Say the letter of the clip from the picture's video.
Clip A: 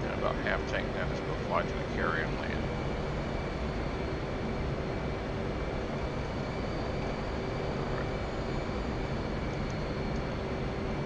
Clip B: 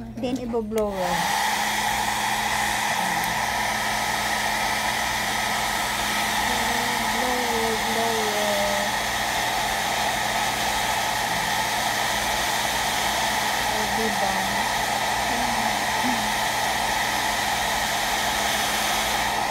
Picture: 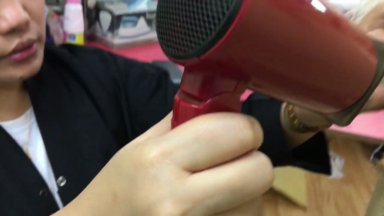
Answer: B